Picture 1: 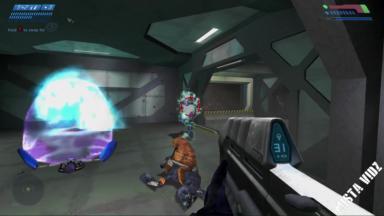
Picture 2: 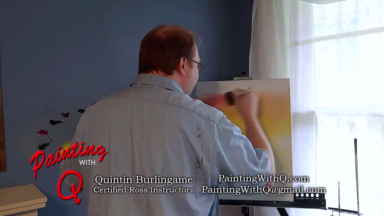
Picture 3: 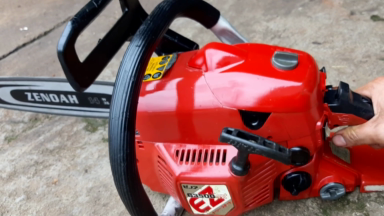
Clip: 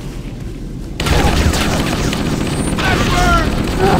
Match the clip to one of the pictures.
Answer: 1